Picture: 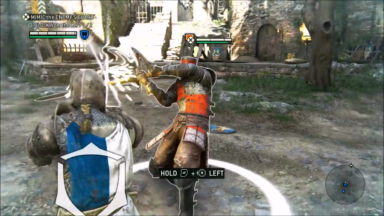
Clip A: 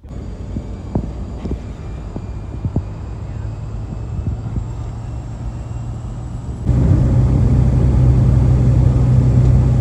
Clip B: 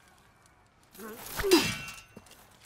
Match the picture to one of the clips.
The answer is B